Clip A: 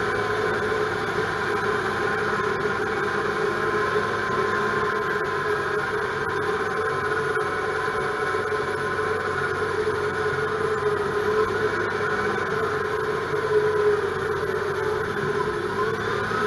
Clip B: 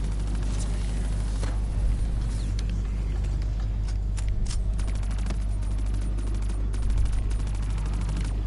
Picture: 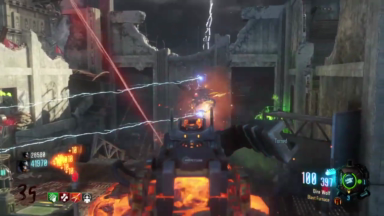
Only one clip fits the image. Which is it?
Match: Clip B